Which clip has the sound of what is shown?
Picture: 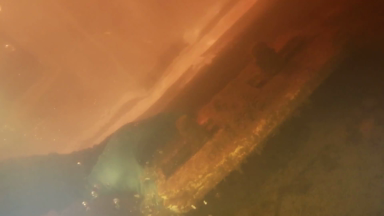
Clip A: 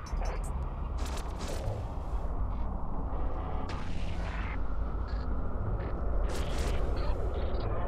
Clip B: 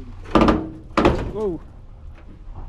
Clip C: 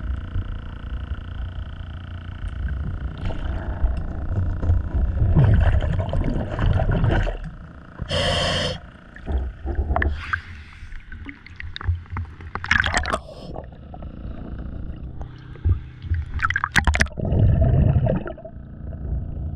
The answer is C